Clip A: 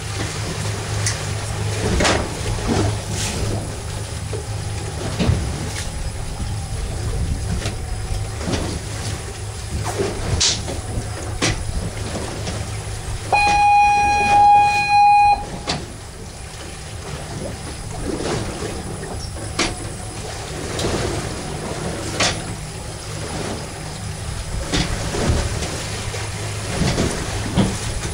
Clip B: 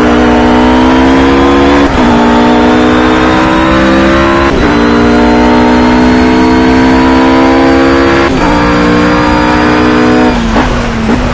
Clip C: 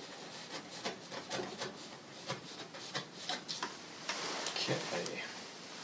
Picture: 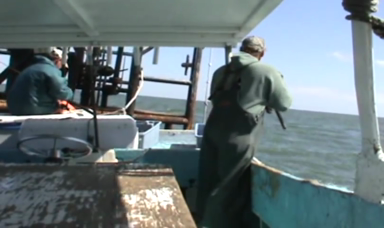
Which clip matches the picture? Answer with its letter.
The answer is A